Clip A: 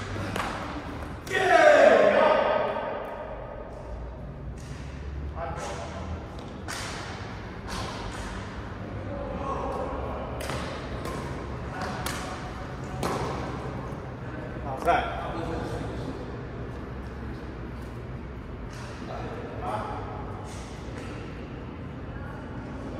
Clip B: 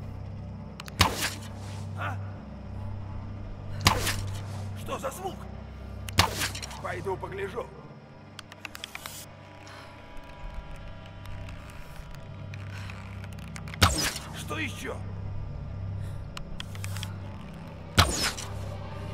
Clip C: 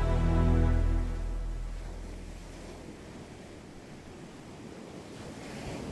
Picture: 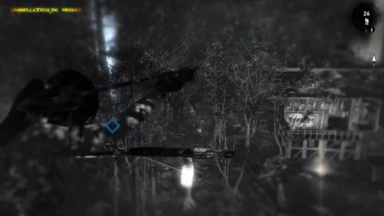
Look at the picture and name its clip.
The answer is B